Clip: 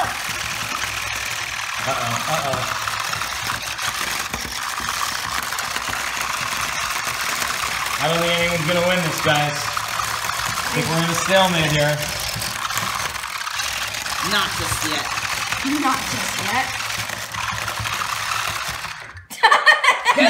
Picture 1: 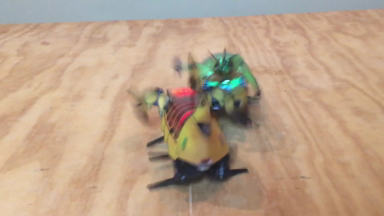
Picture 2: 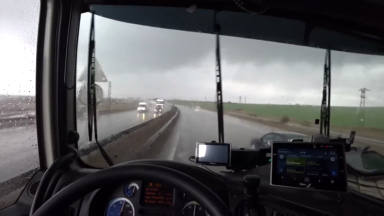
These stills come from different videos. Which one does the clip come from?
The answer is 1